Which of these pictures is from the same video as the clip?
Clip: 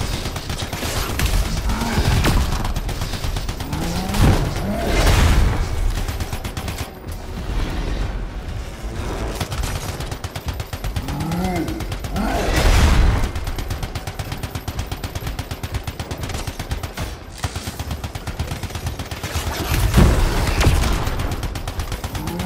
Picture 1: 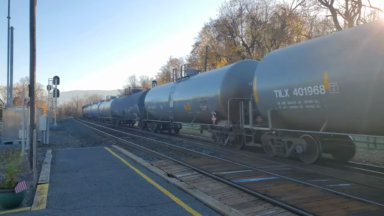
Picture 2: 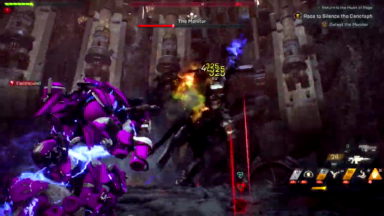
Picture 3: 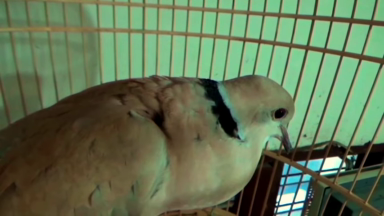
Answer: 2